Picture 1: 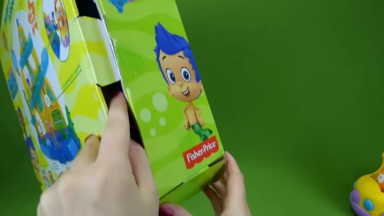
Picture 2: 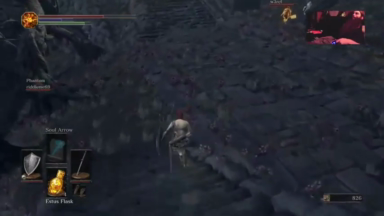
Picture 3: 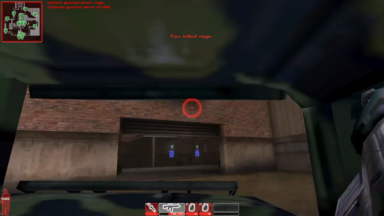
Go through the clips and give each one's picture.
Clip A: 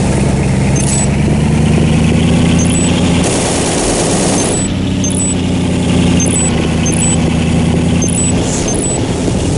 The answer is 3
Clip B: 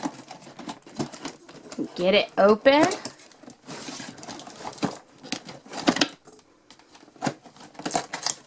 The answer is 1